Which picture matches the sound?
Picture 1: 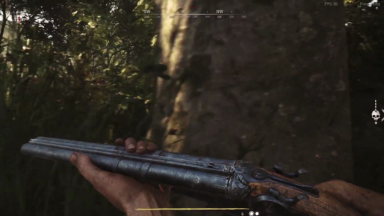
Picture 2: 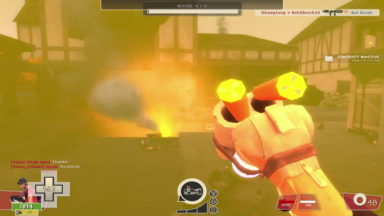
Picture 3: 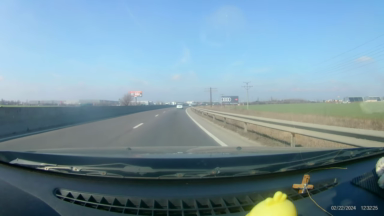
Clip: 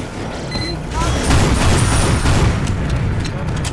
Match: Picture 2